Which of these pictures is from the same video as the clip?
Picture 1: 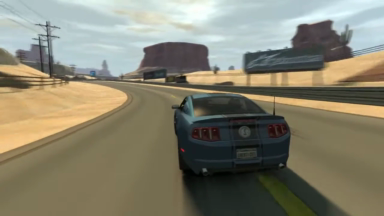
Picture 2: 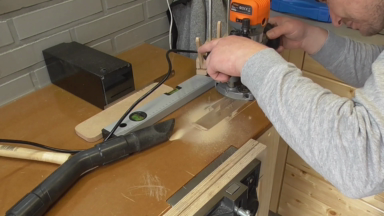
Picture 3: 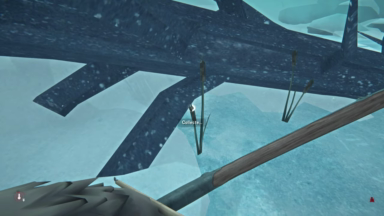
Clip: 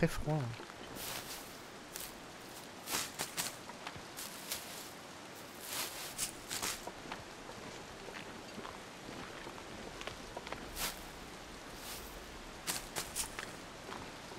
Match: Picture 3